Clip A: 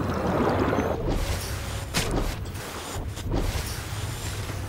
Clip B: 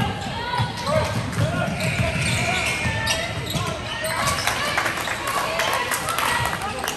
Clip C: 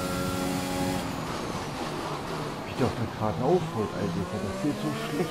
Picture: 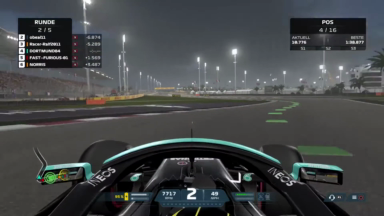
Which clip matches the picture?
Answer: C